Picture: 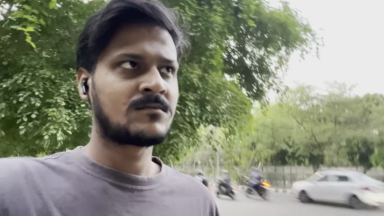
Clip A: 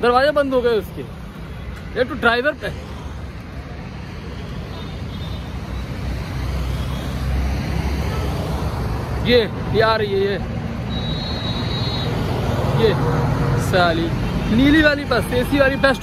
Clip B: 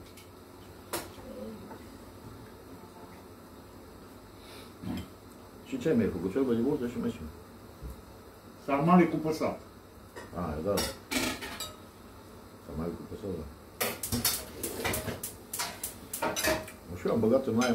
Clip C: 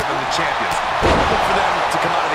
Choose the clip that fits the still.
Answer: A